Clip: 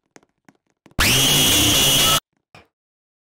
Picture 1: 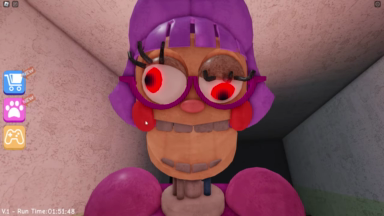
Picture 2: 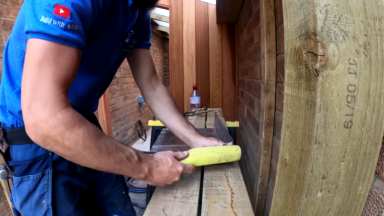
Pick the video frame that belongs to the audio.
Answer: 1